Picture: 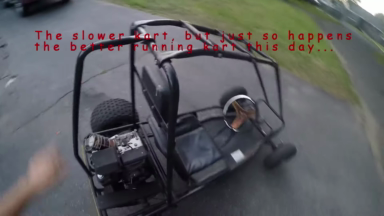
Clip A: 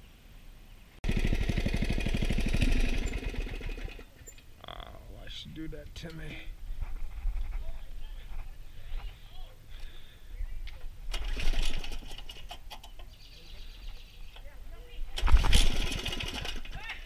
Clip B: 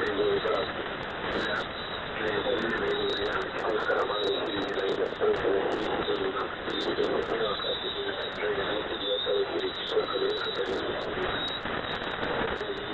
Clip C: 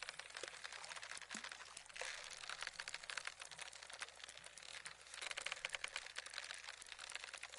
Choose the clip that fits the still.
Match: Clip A